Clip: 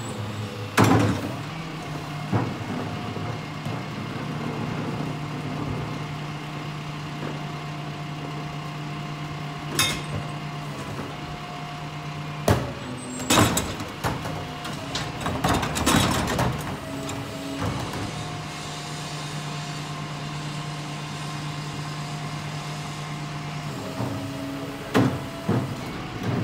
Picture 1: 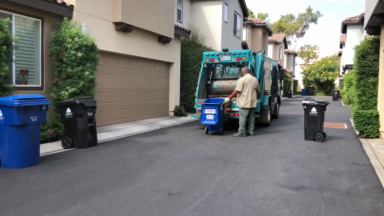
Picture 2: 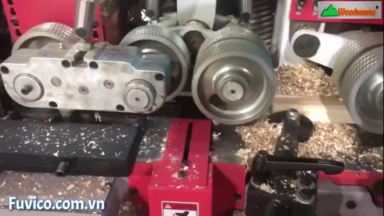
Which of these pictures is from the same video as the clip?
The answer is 1